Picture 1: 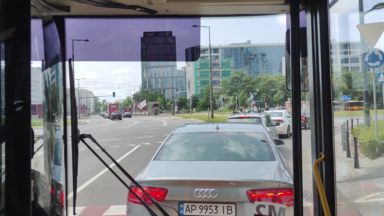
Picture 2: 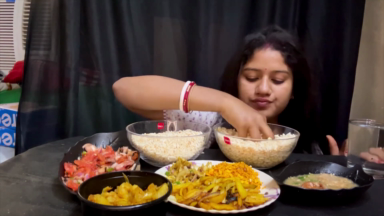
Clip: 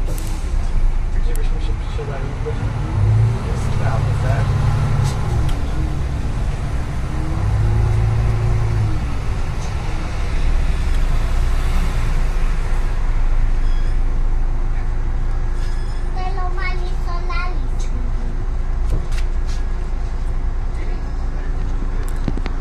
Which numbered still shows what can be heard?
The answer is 1